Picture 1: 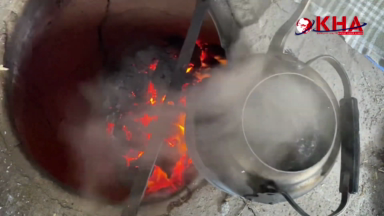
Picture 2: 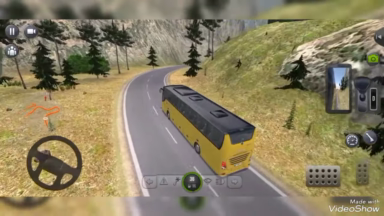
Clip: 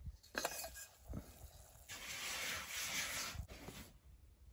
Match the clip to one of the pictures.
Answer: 1